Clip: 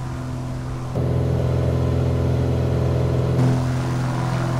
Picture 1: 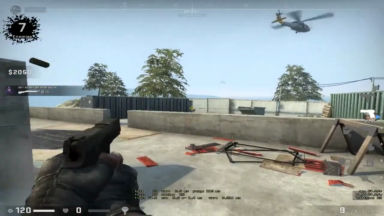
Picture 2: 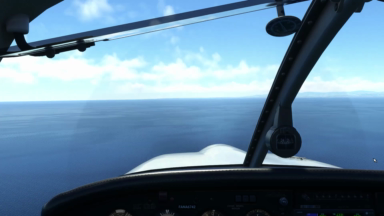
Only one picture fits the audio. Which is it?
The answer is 2